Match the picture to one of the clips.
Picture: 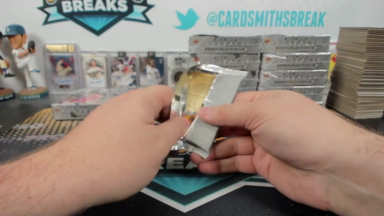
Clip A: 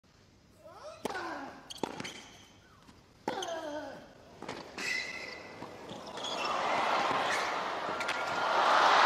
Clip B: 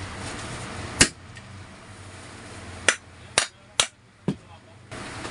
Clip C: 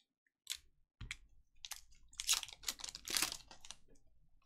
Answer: C